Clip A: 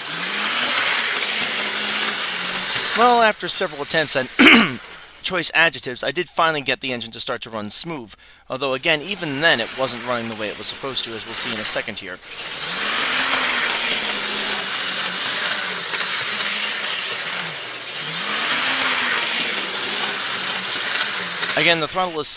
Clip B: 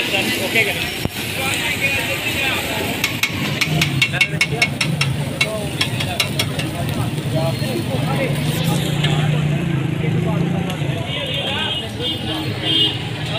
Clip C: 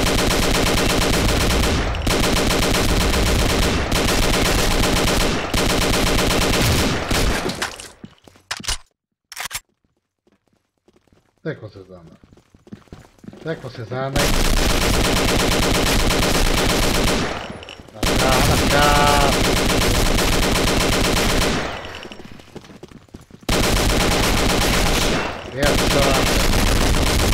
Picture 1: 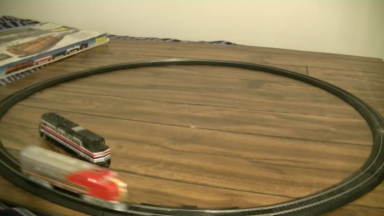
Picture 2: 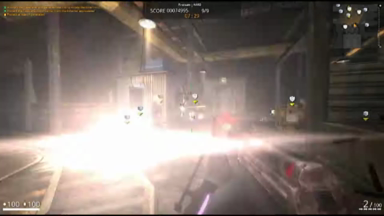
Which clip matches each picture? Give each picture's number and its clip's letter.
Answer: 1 A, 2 C